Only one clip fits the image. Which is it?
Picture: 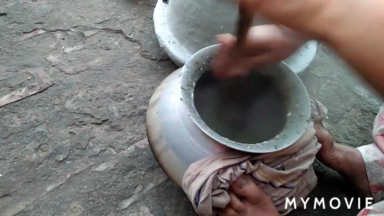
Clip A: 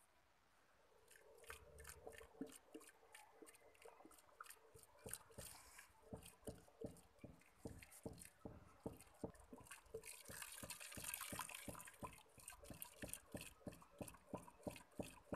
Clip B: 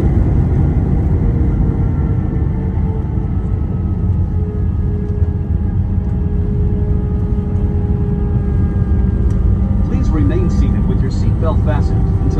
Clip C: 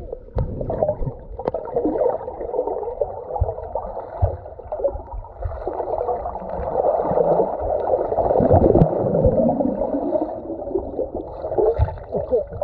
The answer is A